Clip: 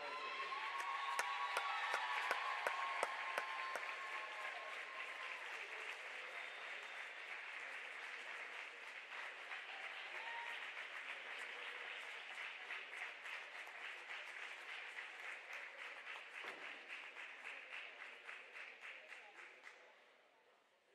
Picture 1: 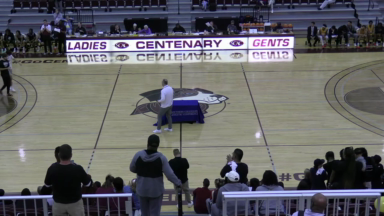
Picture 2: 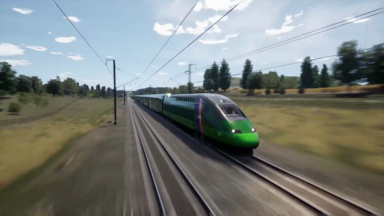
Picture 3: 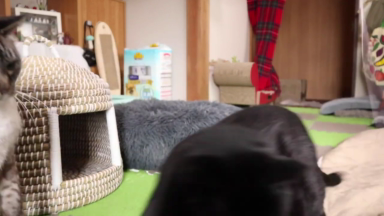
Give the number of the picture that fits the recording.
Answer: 1